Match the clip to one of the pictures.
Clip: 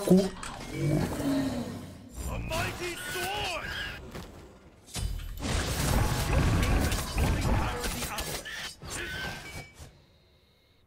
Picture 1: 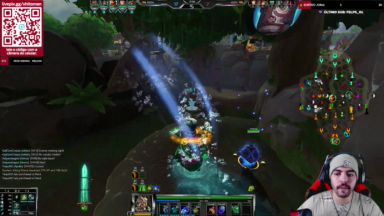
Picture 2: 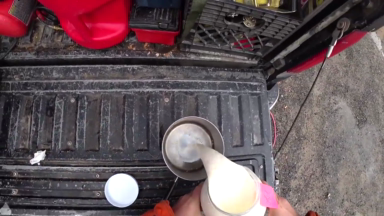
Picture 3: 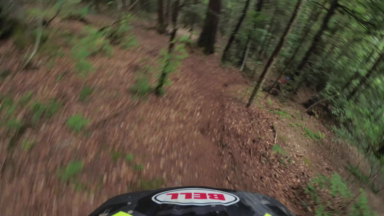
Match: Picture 1